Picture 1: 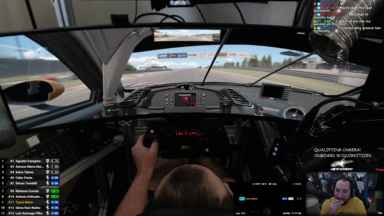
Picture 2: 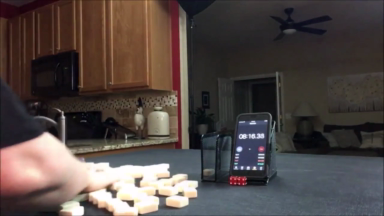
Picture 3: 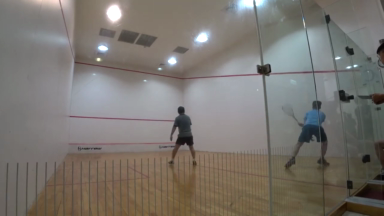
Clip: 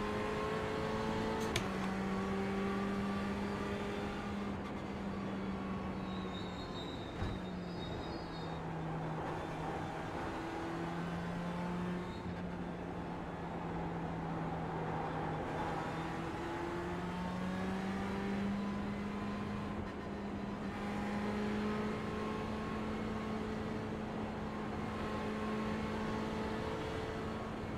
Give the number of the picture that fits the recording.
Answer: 1